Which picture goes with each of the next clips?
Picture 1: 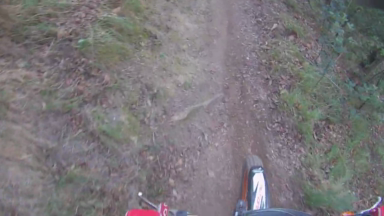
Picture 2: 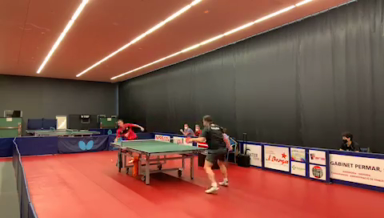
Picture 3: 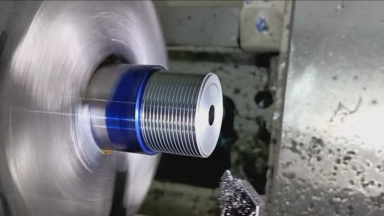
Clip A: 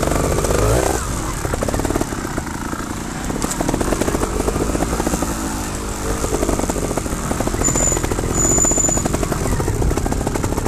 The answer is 1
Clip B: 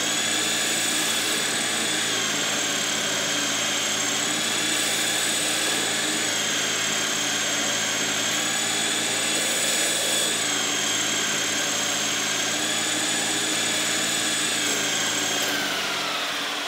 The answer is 3